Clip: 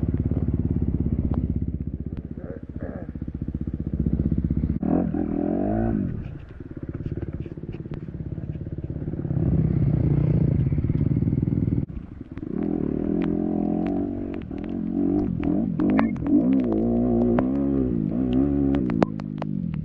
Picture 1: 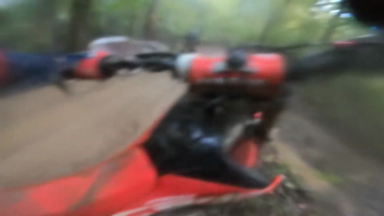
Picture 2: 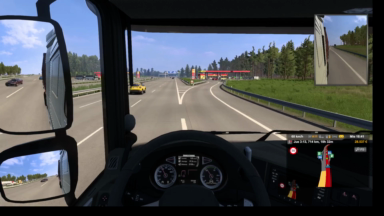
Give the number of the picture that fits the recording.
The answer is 1